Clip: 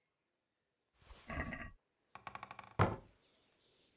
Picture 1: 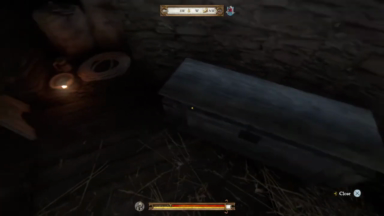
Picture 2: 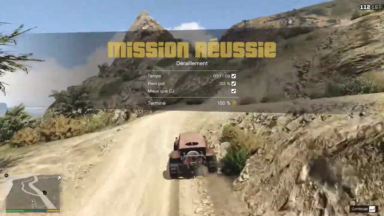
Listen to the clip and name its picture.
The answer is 1